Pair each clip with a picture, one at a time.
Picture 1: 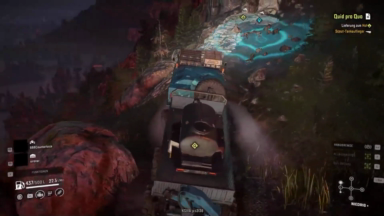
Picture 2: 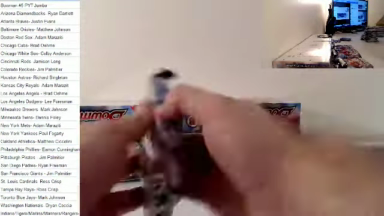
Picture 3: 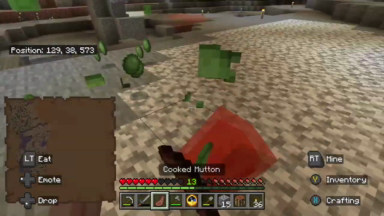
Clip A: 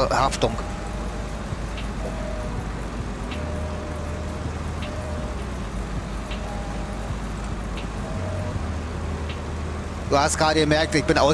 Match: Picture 1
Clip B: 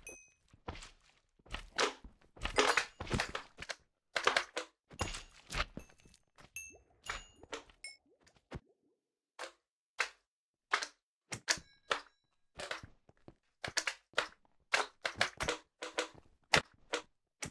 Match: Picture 3